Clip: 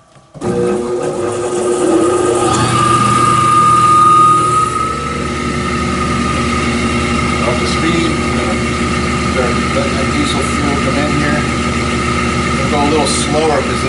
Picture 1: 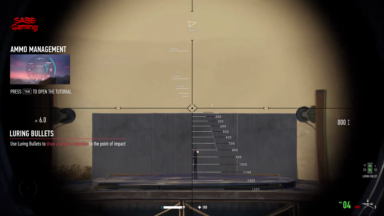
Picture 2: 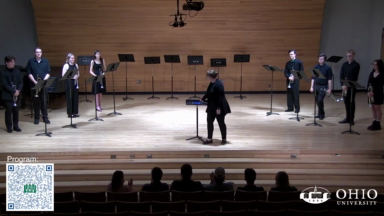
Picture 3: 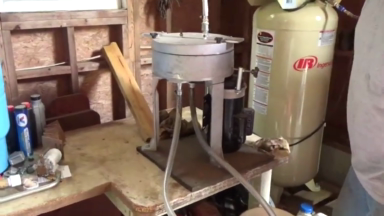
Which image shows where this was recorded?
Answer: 3